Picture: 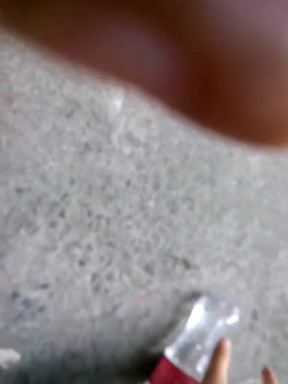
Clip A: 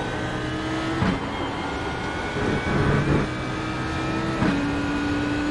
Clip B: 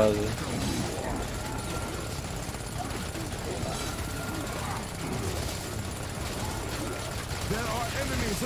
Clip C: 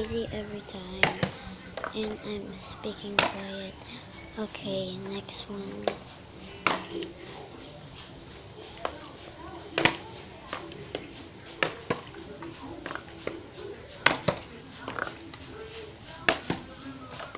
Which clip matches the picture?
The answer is C